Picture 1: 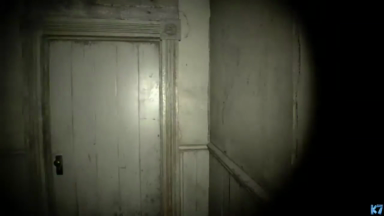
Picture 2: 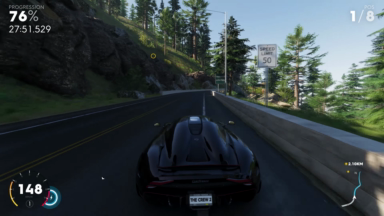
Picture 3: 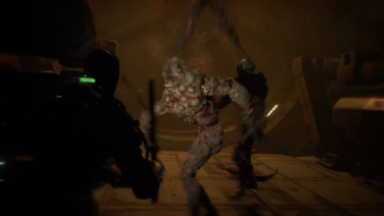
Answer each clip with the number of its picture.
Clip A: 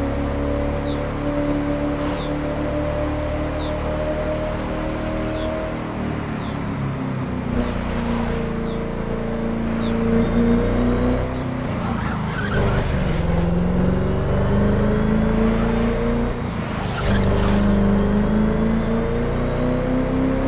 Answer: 2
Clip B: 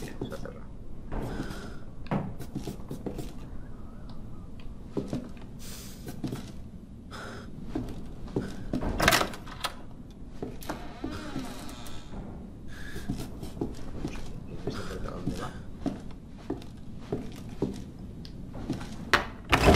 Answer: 1